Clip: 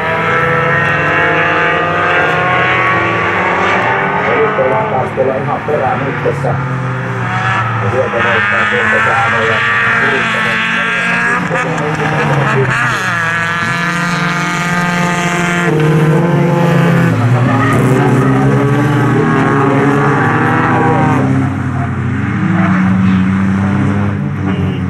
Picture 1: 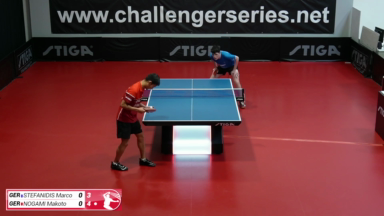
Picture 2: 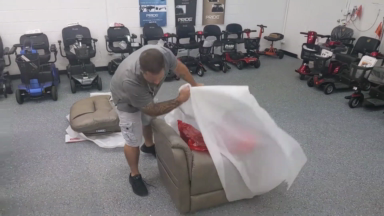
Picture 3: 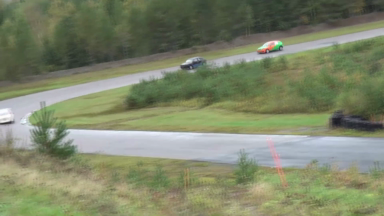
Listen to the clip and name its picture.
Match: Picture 3